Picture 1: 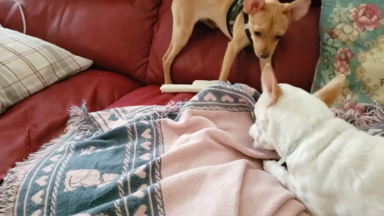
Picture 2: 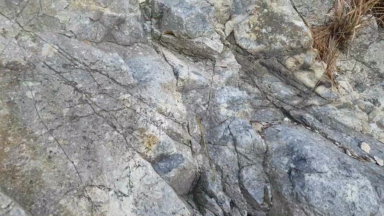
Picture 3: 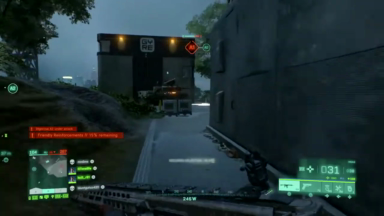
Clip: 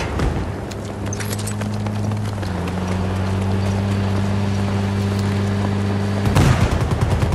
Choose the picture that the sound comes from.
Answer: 3